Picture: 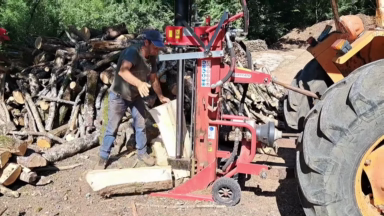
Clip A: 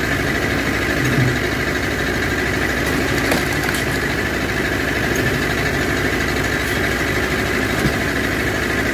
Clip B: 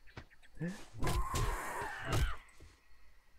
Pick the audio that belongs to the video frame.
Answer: A